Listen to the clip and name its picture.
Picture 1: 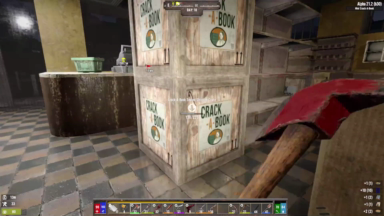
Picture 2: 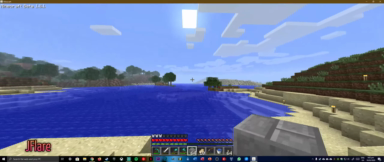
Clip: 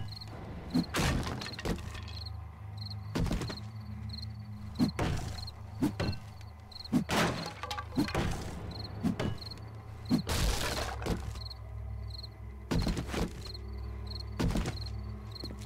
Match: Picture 1